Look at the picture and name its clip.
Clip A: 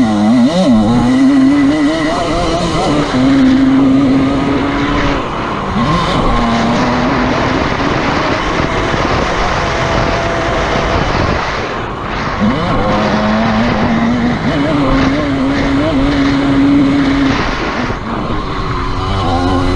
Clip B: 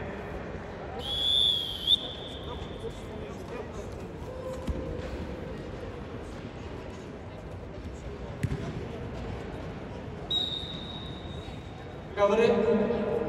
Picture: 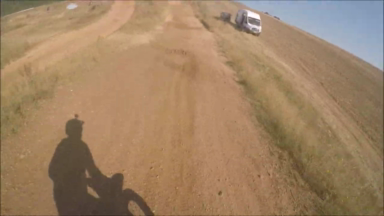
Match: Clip A